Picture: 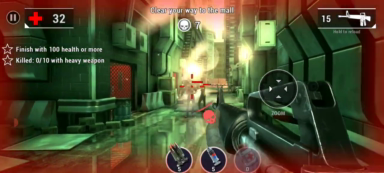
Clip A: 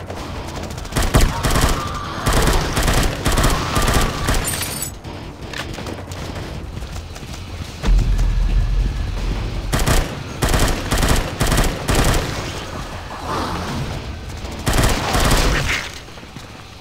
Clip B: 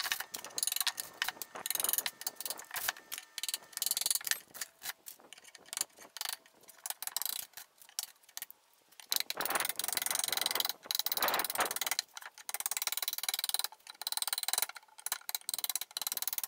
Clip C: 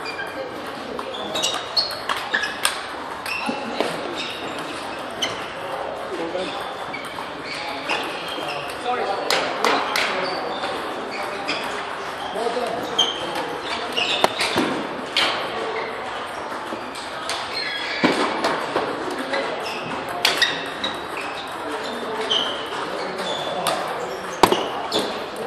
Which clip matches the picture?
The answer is A